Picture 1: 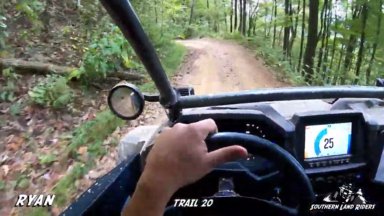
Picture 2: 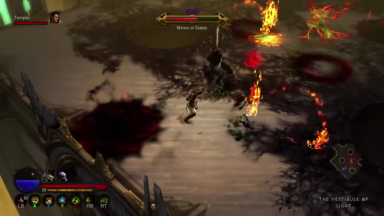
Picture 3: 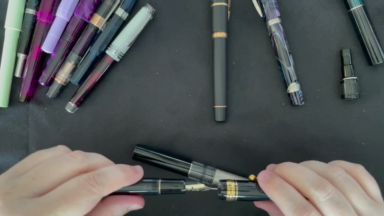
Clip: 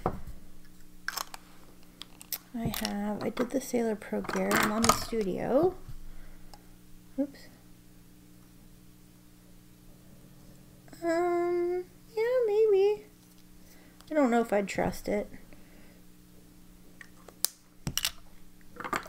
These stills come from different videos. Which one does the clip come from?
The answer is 3